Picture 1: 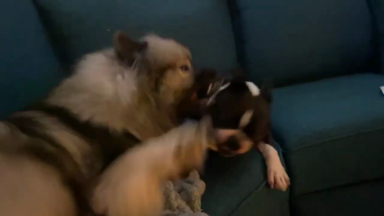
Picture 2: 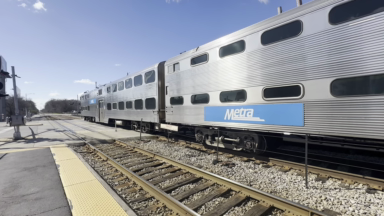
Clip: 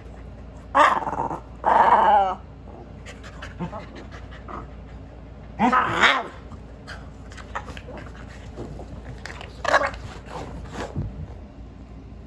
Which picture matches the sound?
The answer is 1